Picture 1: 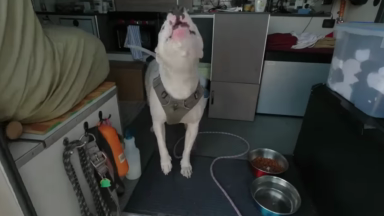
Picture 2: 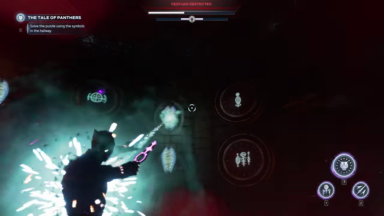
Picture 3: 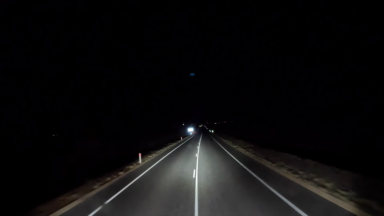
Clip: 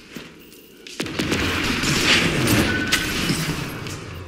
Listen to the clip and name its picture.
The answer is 2